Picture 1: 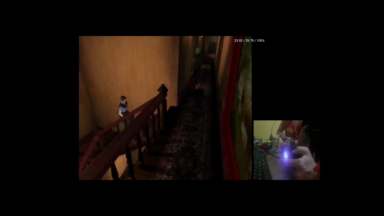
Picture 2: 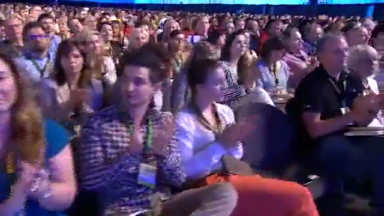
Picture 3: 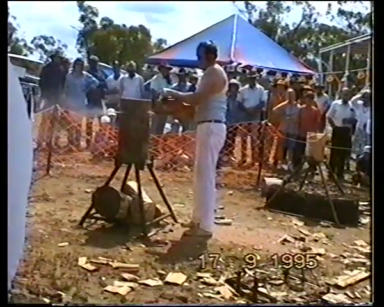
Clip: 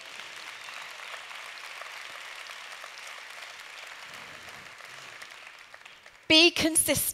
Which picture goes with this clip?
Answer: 2